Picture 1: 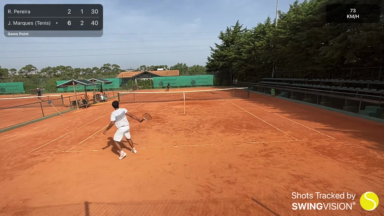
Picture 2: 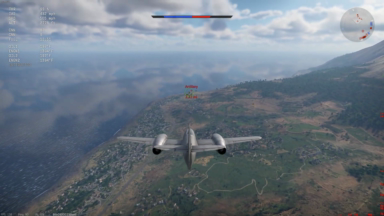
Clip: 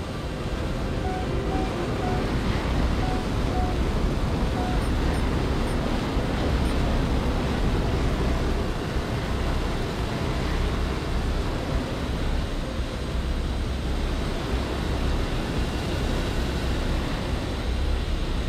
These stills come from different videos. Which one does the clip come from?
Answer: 2